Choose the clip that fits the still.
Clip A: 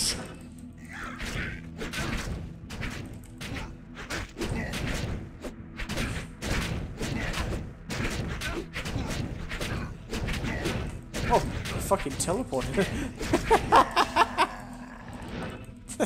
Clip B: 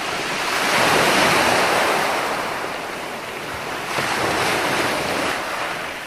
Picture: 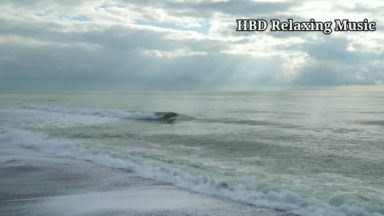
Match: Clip B